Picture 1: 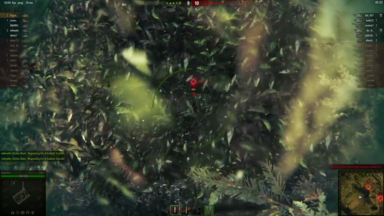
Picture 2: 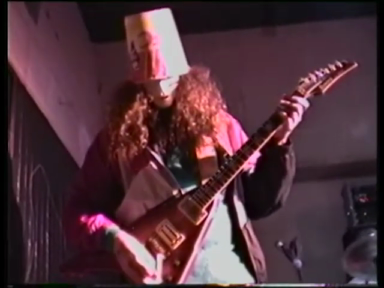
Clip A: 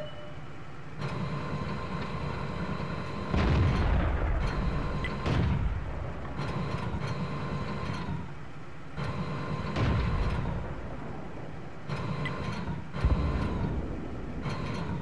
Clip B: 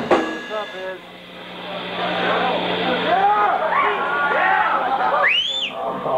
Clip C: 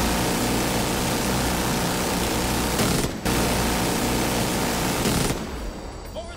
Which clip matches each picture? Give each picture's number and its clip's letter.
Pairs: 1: A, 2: B